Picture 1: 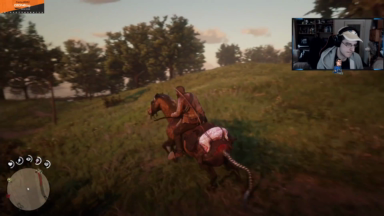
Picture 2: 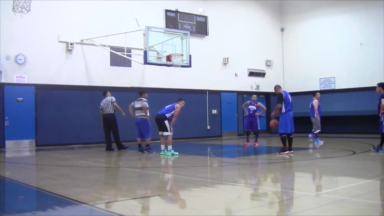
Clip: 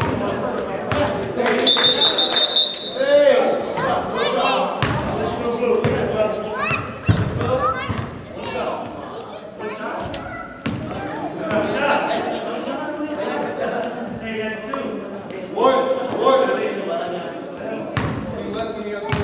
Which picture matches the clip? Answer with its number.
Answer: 2